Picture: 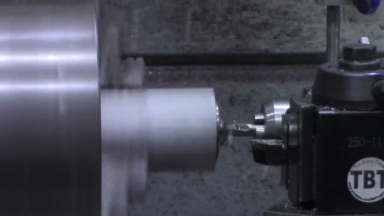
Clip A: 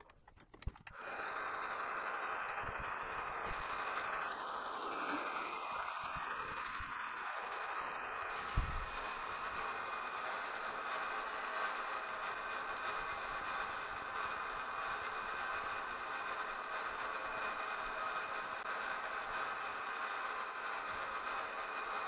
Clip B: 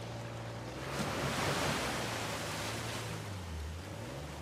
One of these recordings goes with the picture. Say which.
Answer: A